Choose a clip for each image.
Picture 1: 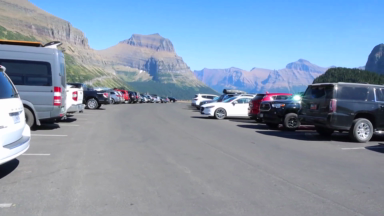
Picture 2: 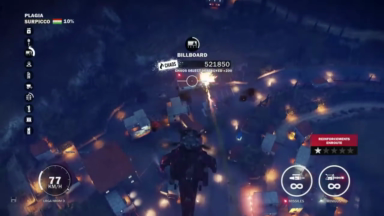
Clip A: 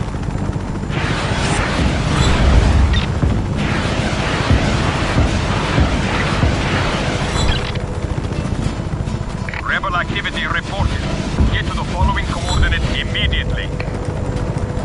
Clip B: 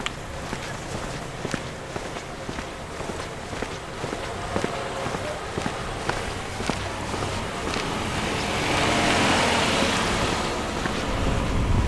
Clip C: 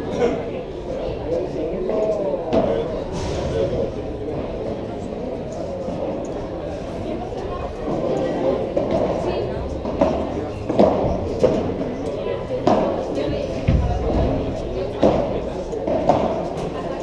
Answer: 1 B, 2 A